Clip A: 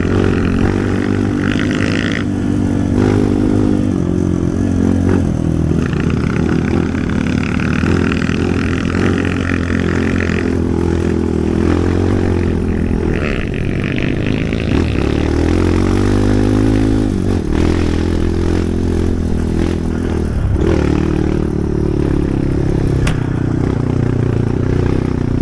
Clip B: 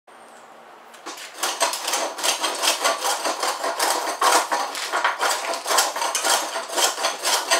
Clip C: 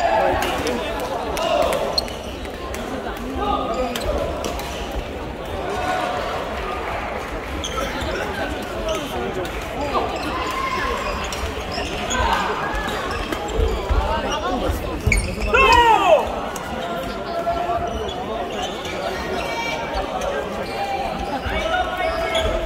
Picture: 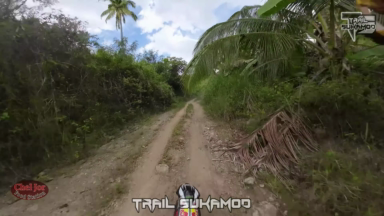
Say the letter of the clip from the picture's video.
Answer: A